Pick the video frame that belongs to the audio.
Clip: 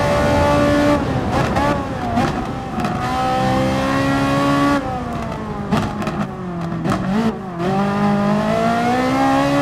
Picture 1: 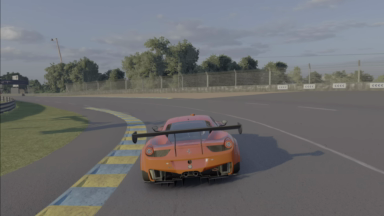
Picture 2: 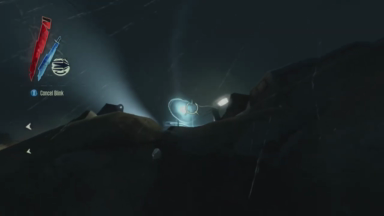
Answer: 1